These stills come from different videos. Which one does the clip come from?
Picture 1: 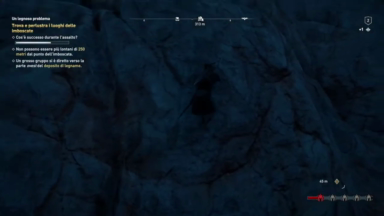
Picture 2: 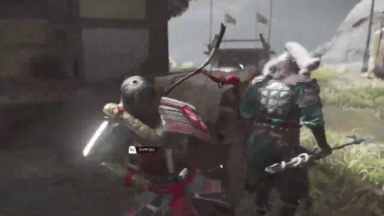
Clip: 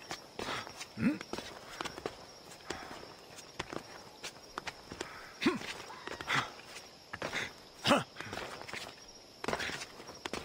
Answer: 1